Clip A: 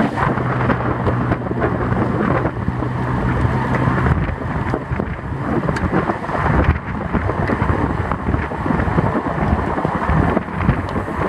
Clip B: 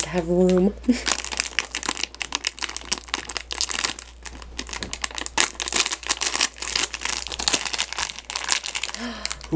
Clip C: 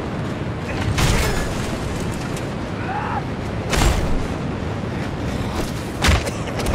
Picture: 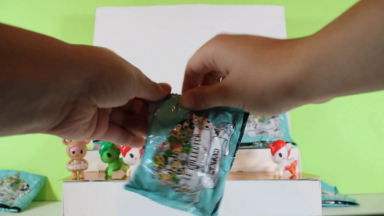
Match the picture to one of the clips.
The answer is B